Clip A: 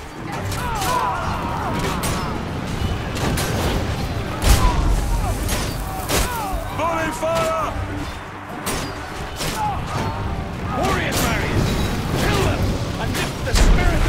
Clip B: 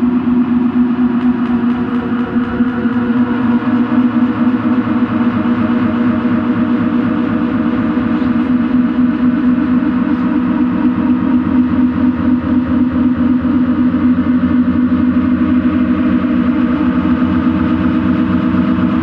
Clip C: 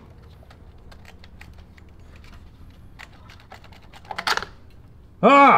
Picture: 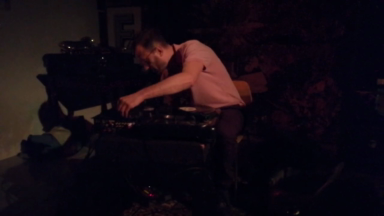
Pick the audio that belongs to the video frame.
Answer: B